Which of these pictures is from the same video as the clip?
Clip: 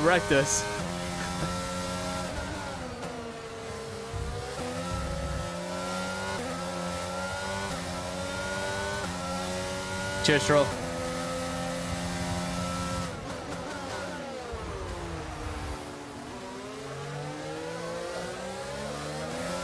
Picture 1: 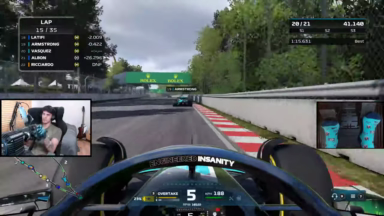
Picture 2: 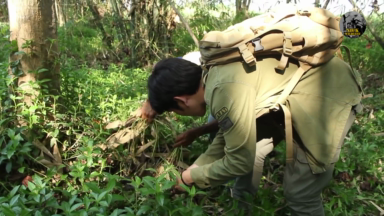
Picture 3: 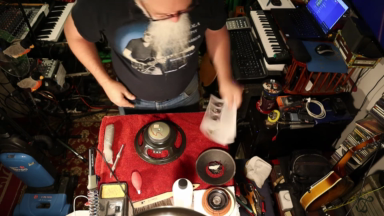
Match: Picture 1